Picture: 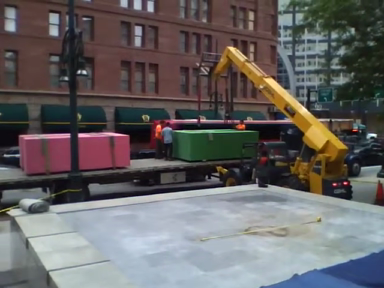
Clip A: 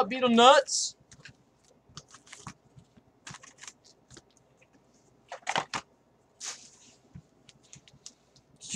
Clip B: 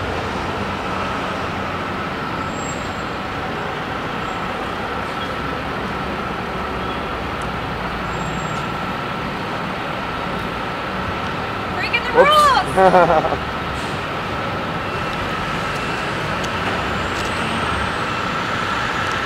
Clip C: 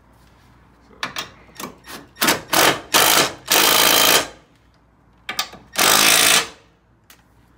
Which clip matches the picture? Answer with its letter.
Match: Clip B